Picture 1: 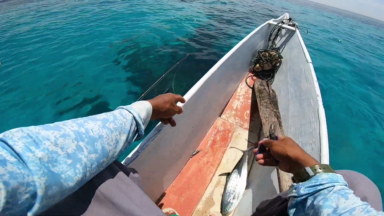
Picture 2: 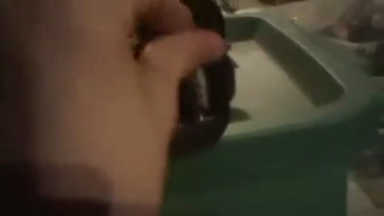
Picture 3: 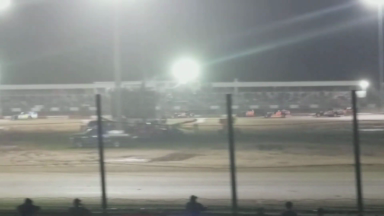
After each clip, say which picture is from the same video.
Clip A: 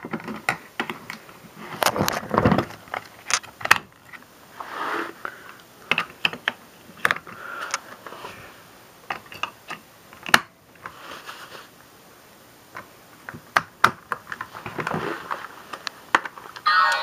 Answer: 2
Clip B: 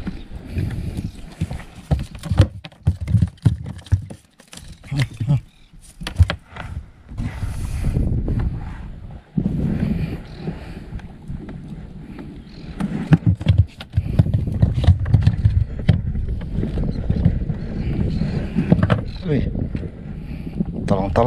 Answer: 1